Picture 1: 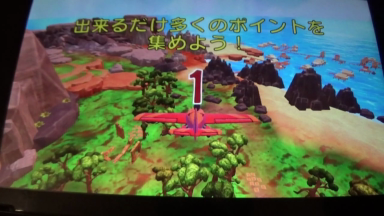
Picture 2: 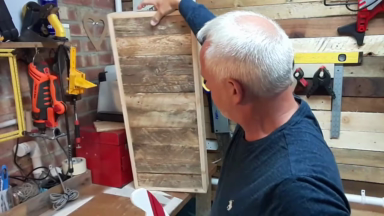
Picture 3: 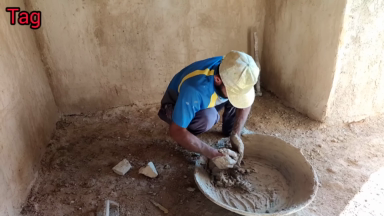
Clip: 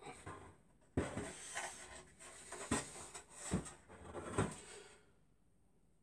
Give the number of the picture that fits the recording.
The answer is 2